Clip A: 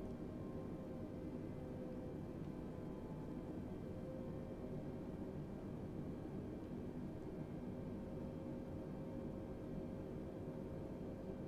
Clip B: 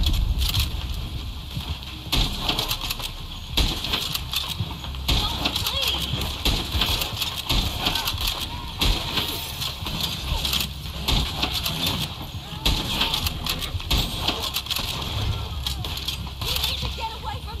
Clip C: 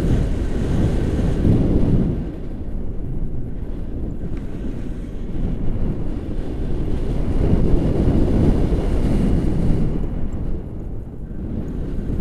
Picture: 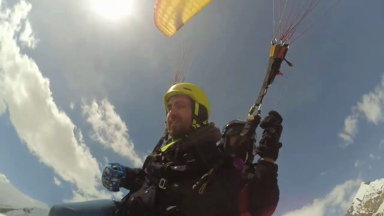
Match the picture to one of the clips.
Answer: C